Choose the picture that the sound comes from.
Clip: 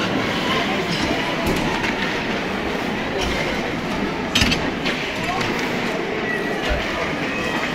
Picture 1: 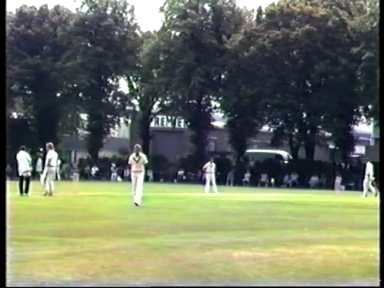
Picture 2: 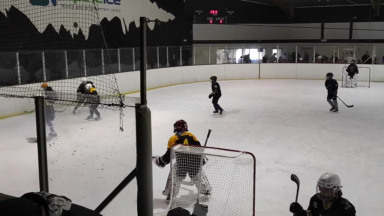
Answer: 2